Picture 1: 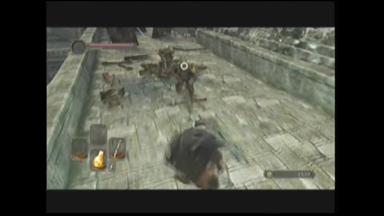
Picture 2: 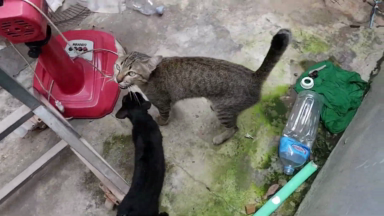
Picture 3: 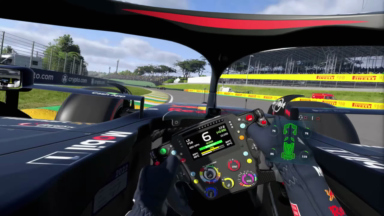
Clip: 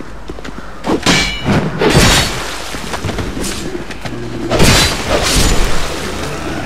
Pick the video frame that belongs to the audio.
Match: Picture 1